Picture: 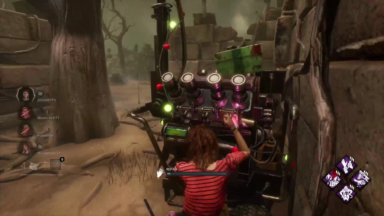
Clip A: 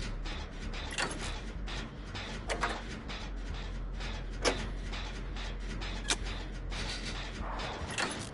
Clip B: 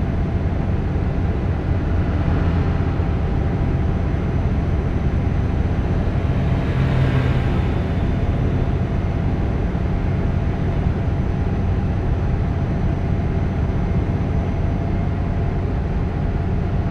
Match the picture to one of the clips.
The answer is A